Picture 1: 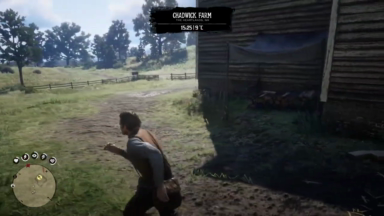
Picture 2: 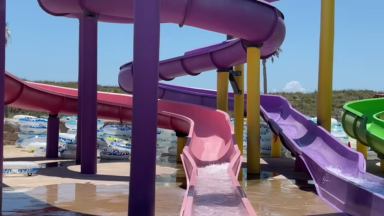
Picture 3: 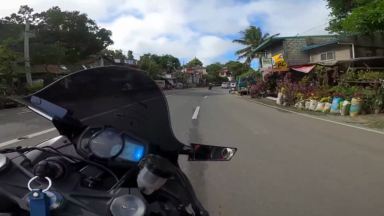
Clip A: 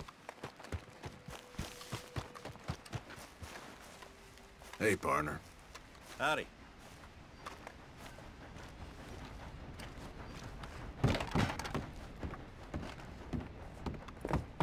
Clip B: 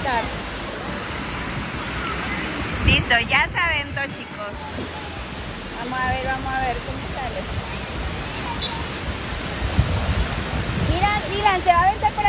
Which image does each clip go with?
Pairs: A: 1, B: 2